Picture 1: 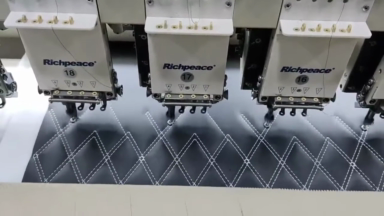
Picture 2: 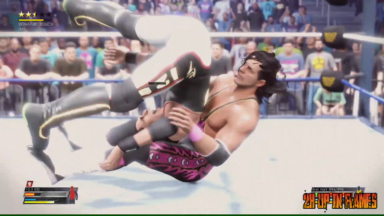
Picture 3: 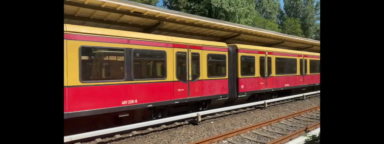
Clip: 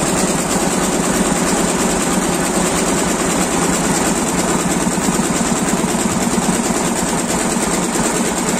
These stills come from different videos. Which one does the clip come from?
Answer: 1